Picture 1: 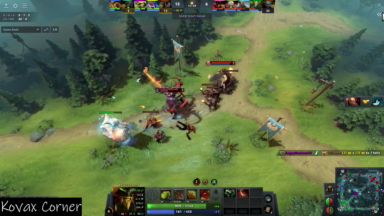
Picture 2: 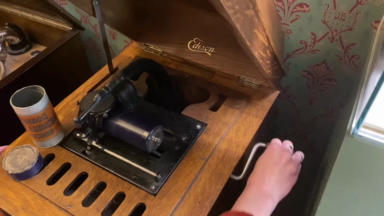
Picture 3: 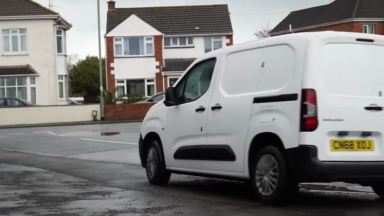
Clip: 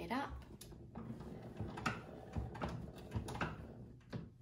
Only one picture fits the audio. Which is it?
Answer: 2